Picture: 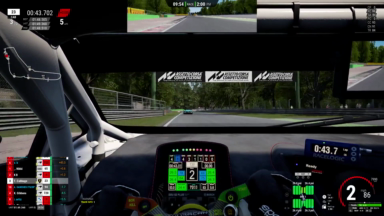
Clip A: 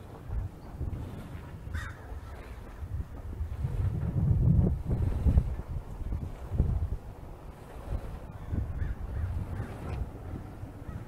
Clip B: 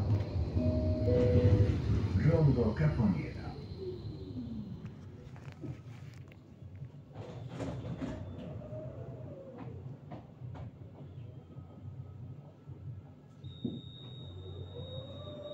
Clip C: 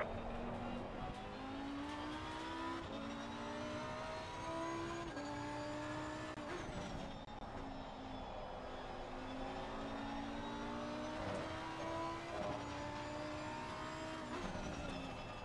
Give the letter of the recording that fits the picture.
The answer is C